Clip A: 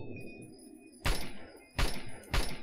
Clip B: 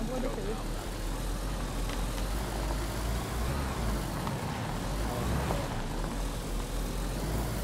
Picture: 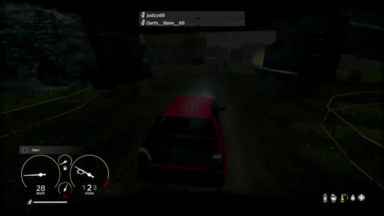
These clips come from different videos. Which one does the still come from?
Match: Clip B